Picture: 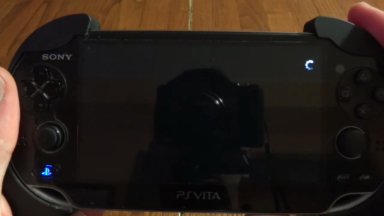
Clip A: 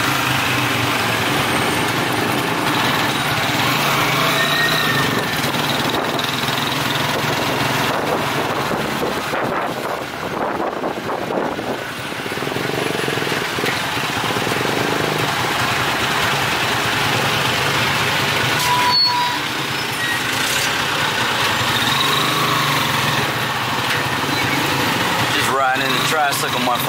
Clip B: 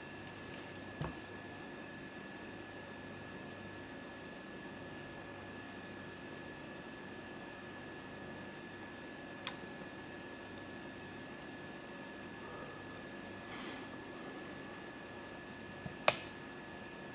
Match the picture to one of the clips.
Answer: B